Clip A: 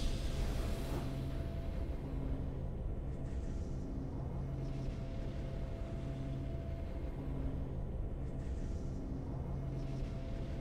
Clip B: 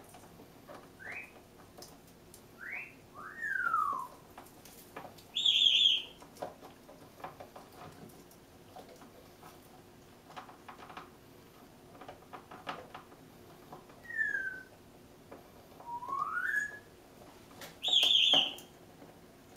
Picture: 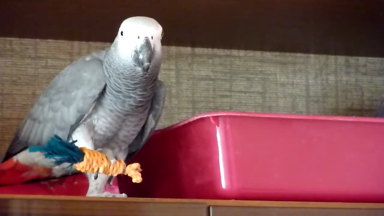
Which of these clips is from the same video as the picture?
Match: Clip B